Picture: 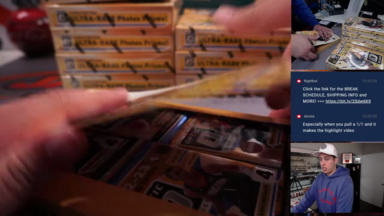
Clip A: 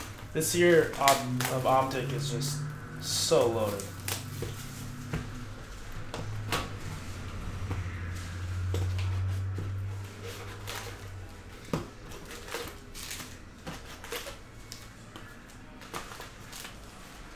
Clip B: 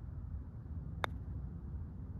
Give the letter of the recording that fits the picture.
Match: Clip A